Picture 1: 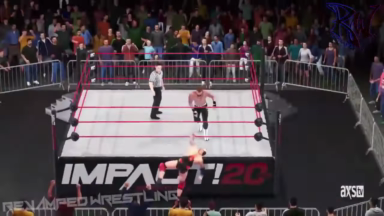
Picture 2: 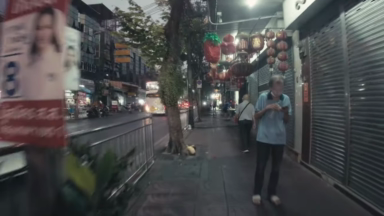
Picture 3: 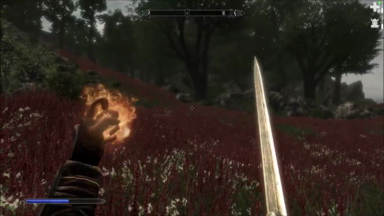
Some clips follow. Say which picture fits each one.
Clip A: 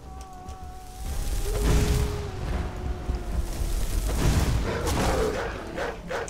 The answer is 3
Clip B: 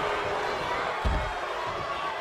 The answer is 1